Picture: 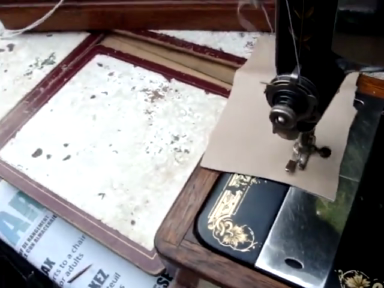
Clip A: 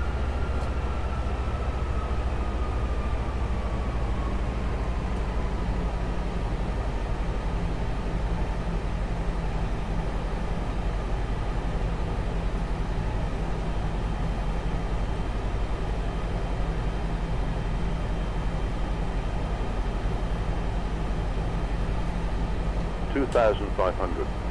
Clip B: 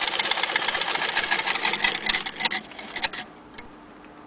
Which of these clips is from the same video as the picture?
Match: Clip B